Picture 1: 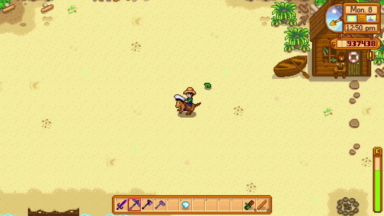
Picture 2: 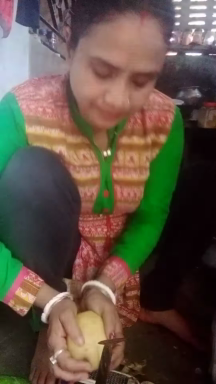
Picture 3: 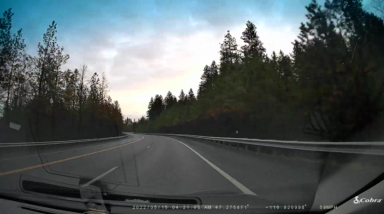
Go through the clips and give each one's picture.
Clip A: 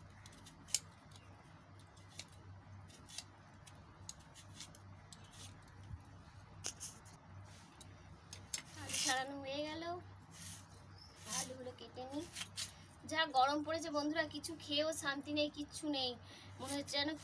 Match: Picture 2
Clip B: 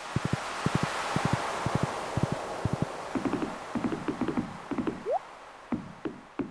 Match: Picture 1